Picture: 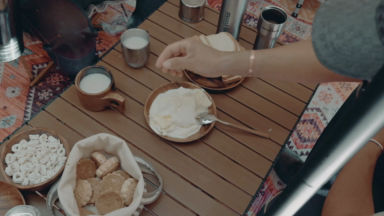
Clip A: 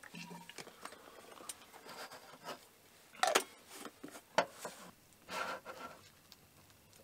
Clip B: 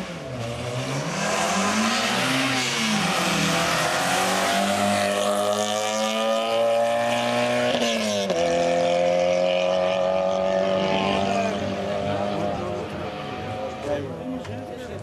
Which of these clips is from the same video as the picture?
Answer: A